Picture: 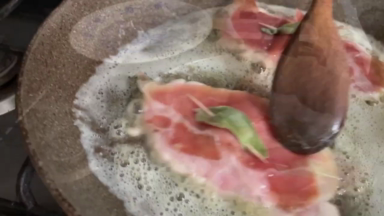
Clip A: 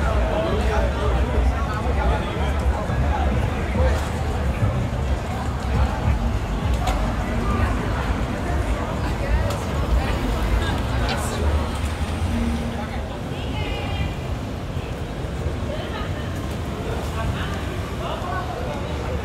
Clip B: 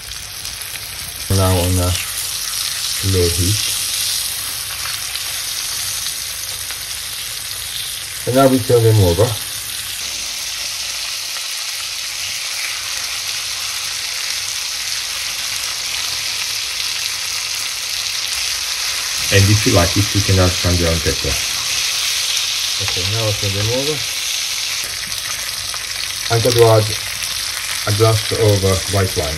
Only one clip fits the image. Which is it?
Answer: B